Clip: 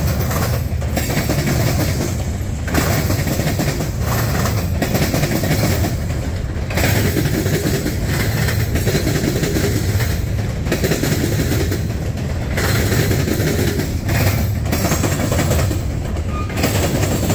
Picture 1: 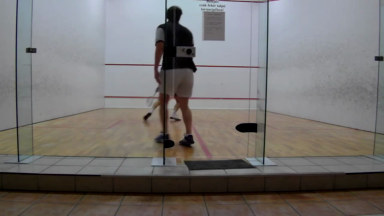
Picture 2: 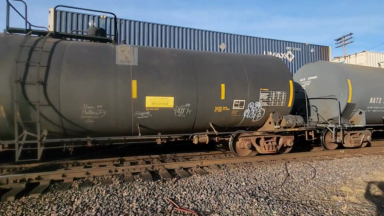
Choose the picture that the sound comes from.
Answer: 2